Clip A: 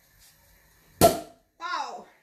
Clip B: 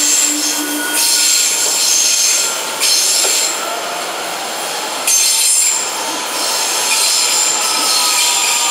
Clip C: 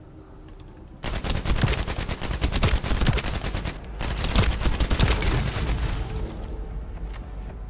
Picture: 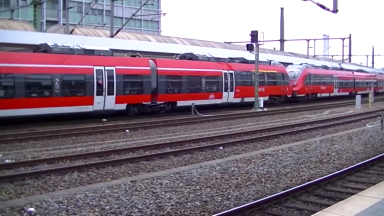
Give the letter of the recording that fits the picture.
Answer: B